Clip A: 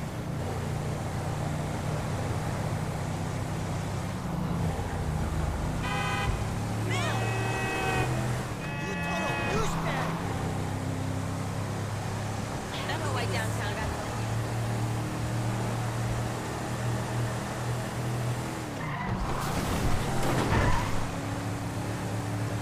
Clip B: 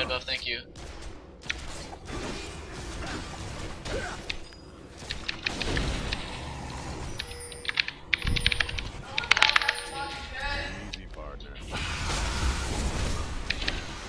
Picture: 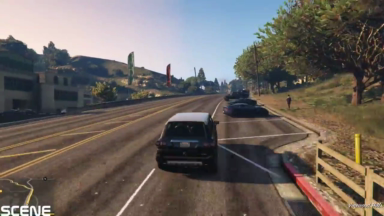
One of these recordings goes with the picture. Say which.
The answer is A